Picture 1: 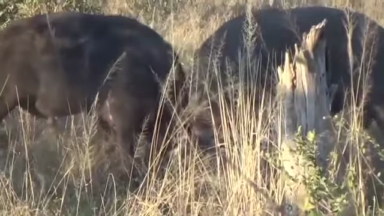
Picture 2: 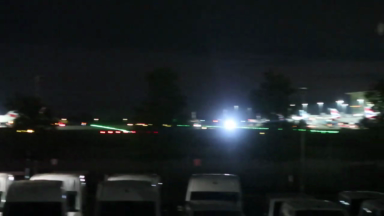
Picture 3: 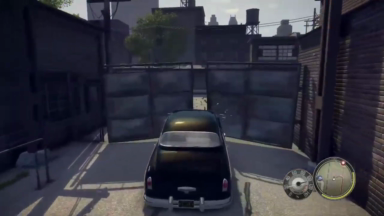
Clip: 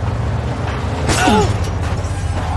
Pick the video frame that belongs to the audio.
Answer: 3